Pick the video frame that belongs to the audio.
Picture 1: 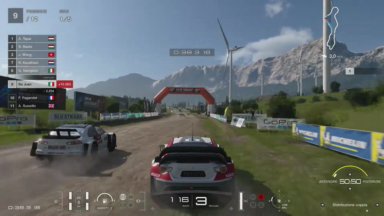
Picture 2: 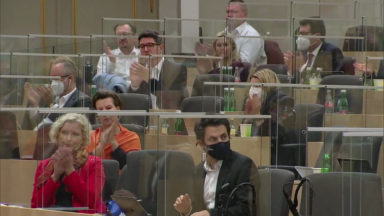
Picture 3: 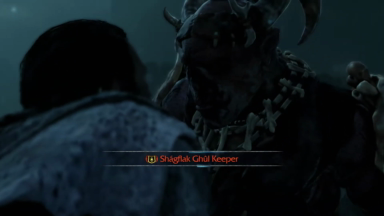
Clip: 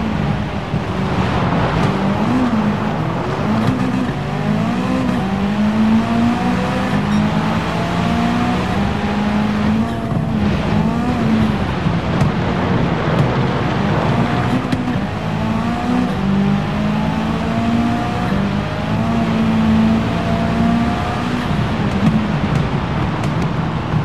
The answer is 1